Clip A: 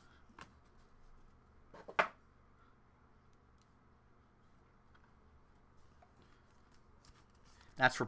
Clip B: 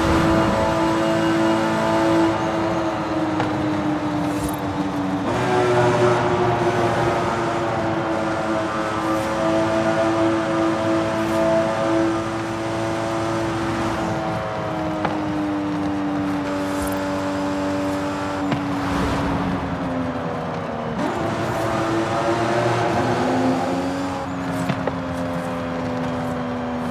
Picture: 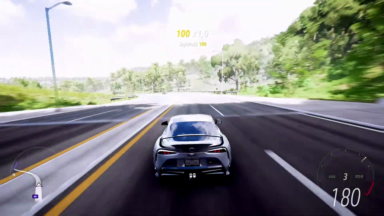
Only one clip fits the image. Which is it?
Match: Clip B